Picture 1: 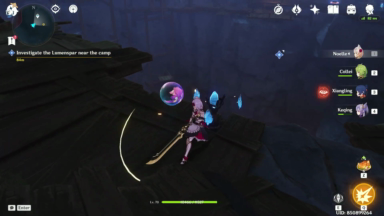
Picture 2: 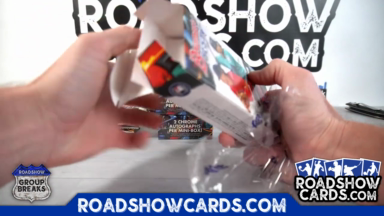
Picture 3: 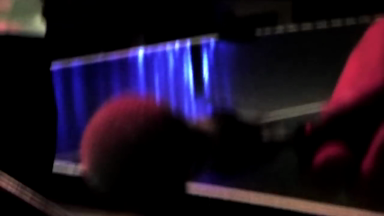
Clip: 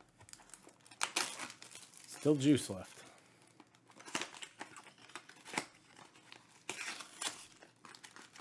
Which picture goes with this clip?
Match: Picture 2